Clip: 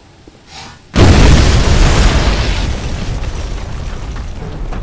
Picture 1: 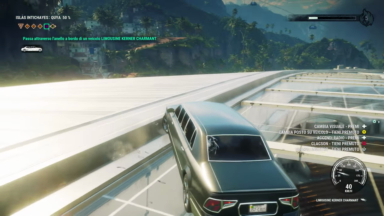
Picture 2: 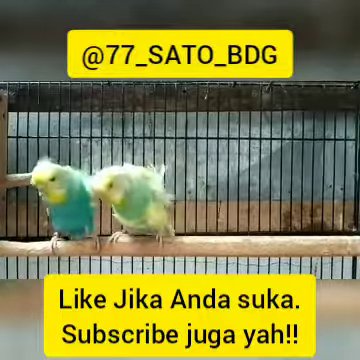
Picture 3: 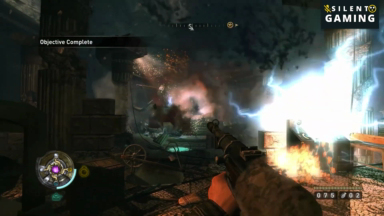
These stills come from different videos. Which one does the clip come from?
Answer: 3